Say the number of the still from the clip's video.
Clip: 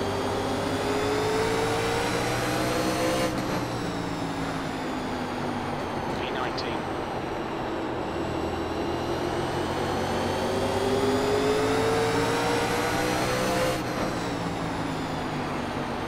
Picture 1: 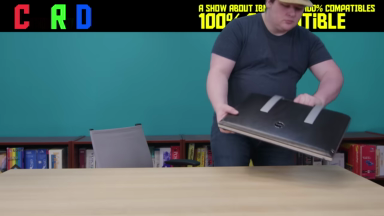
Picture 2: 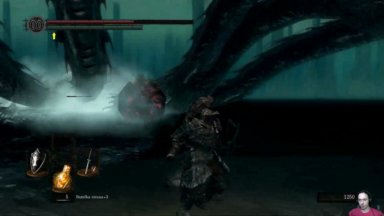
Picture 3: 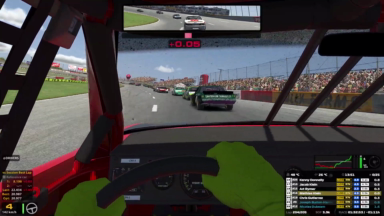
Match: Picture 3